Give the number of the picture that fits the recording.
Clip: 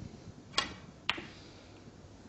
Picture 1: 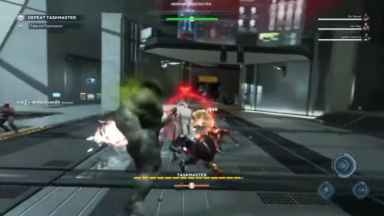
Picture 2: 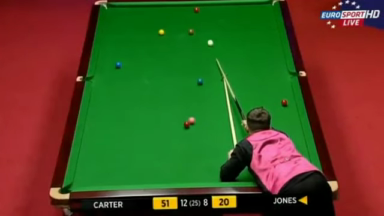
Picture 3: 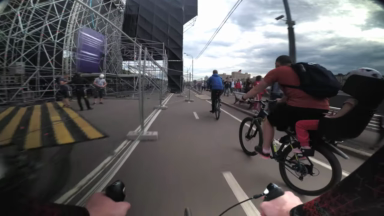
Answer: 2